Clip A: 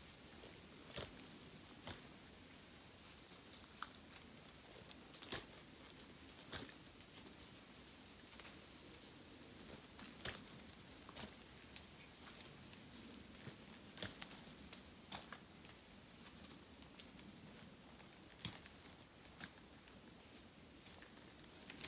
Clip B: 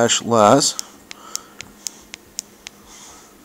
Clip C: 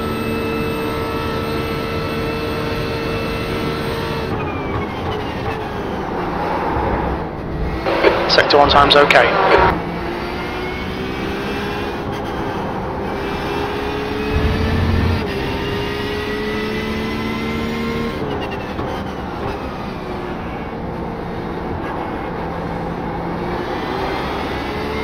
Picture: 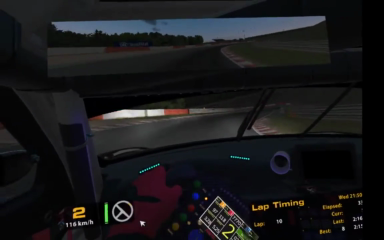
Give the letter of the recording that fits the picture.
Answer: C